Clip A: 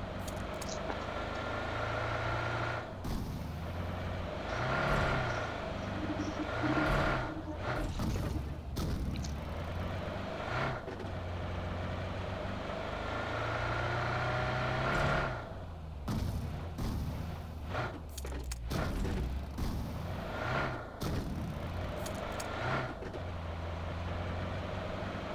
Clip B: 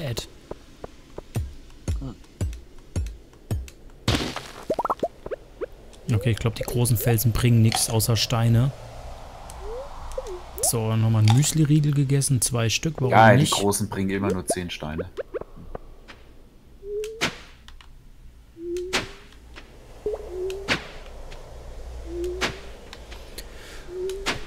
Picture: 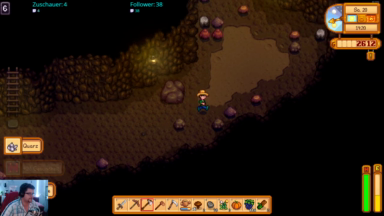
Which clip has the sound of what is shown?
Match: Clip B